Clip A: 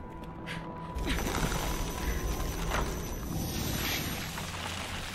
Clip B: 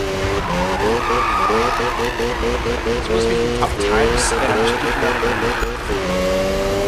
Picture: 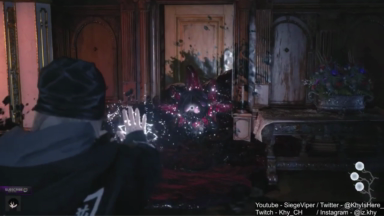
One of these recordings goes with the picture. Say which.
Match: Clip A